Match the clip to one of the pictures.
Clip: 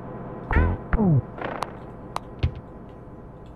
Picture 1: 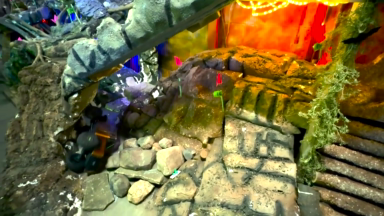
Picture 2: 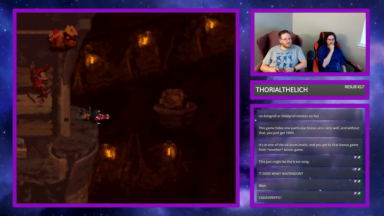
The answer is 2